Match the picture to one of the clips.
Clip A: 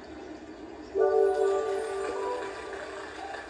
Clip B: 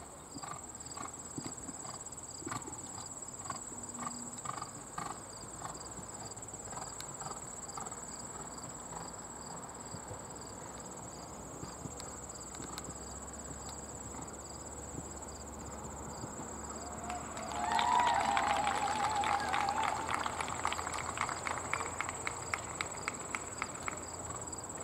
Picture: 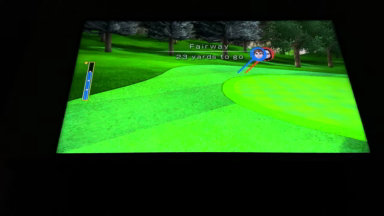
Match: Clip A